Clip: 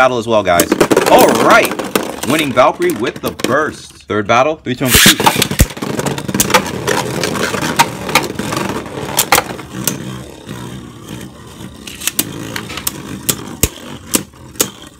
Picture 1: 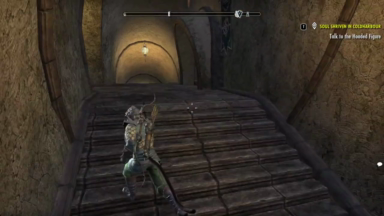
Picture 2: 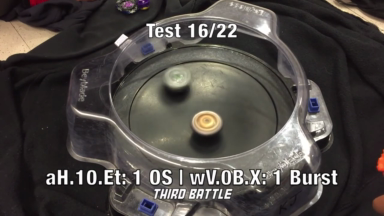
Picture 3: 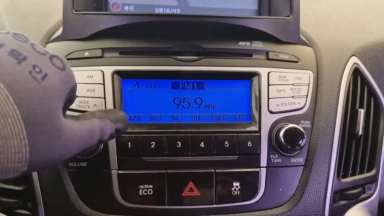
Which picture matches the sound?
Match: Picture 2